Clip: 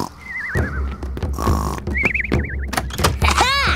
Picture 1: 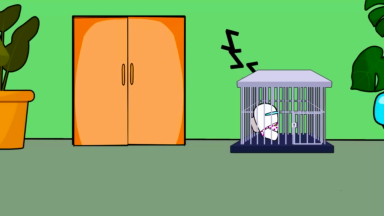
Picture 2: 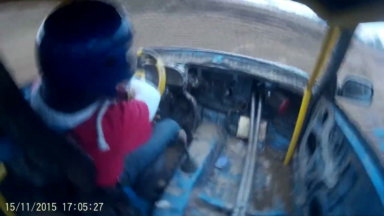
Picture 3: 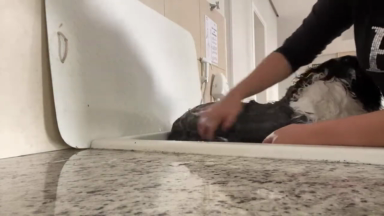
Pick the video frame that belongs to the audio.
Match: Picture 1